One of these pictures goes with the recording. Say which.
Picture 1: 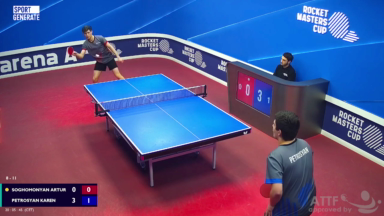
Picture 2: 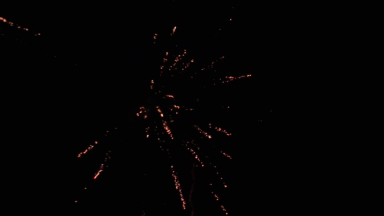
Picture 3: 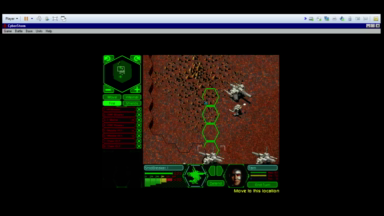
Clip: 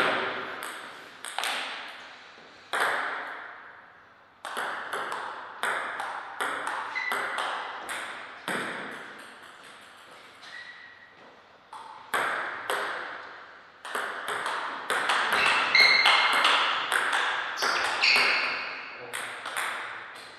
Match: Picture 1